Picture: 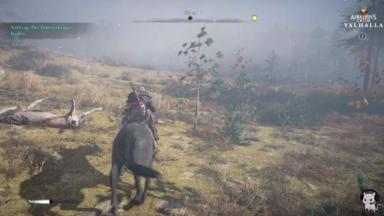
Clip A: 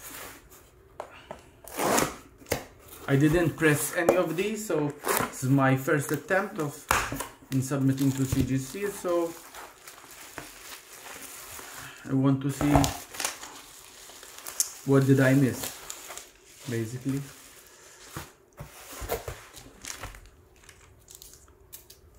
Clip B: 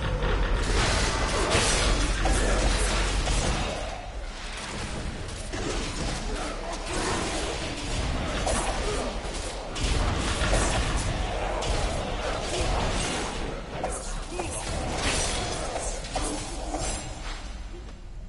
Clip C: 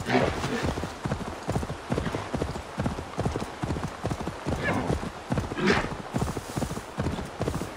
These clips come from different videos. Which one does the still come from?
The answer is C